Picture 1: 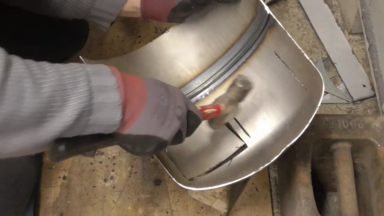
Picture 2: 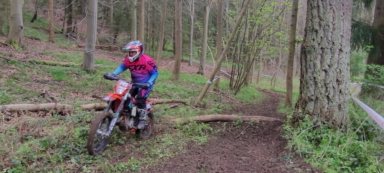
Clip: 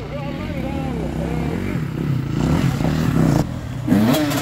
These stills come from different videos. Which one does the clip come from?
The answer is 2